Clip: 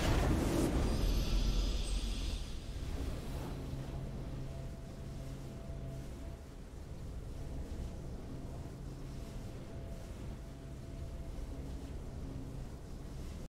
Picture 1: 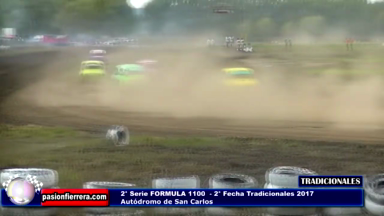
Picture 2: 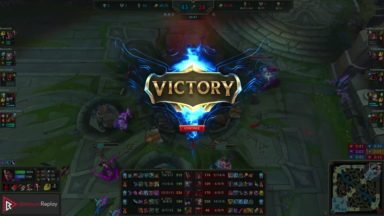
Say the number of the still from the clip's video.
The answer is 2